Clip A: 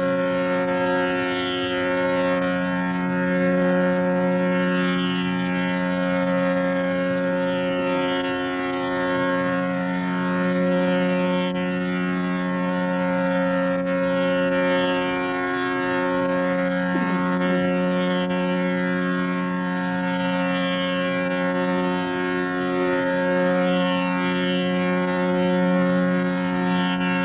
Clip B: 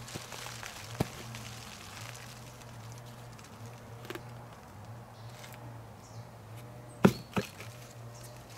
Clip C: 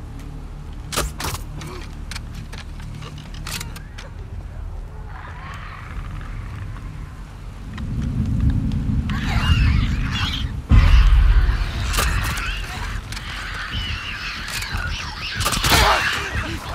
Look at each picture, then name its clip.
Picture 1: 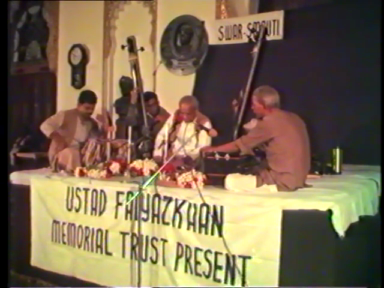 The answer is A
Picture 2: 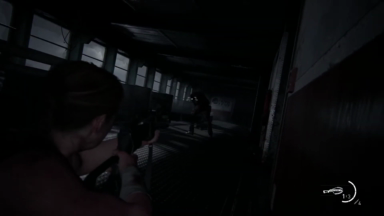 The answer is C